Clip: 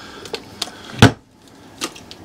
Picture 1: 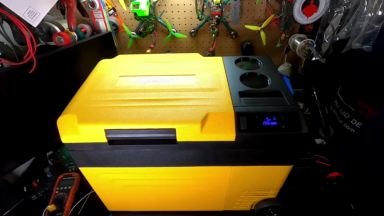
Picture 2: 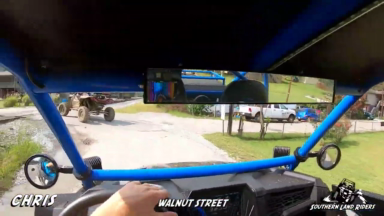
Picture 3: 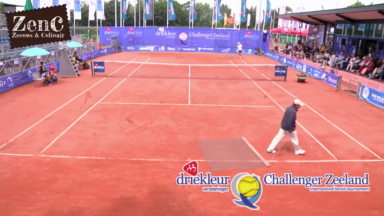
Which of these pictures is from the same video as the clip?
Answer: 1